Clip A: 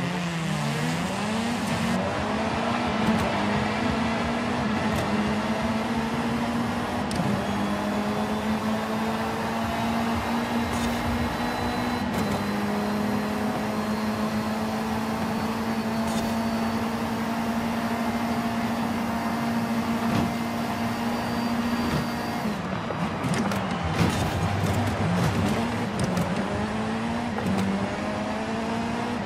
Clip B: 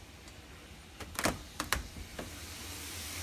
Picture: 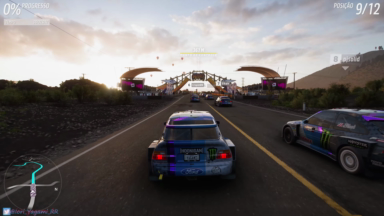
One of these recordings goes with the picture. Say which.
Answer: A